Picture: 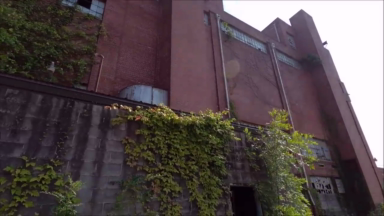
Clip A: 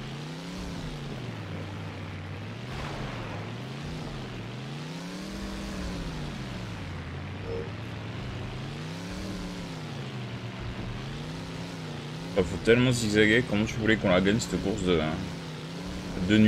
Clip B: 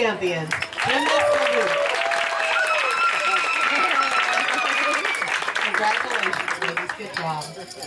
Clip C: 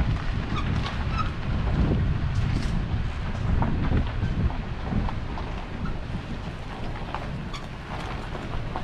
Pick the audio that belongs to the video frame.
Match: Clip C